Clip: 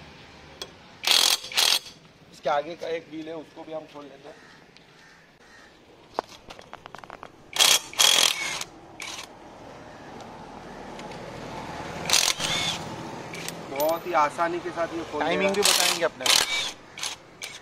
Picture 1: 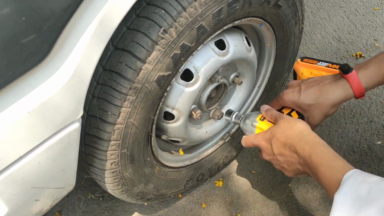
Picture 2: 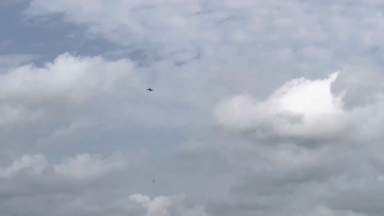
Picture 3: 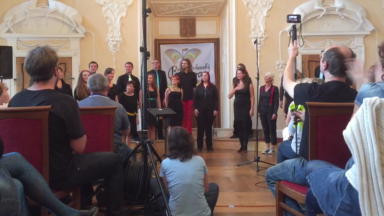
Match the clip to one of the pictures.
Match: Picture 1